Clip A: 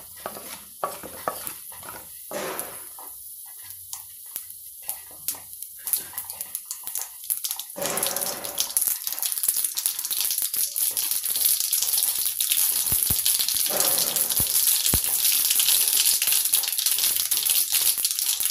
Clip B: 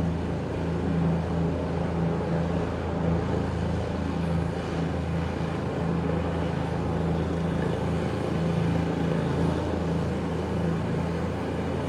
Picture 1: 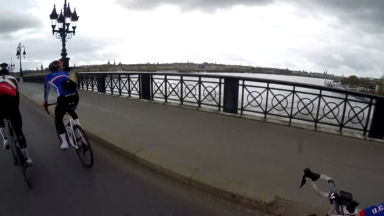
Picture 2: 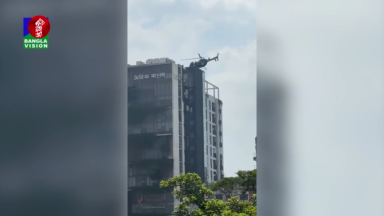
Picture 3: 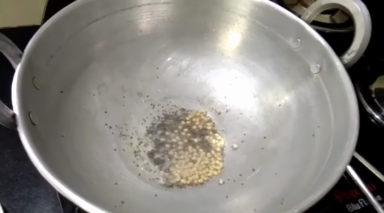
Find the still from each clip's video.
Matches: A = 3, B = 2